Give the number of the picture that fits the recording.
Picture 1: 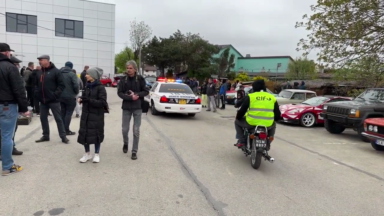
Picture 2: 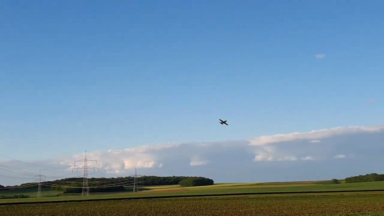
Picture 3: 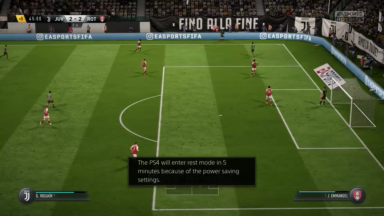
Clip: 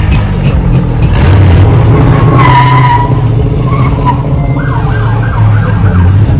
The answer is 1